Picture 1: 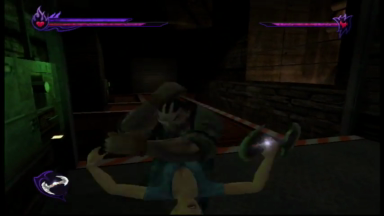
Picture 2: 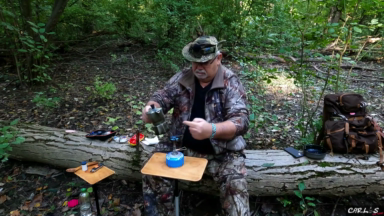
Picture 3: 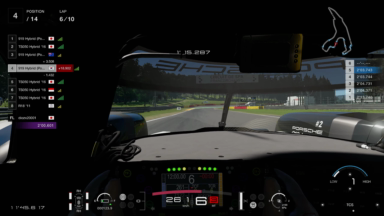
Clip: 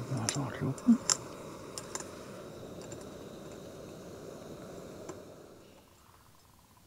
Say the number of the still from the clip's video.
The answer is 2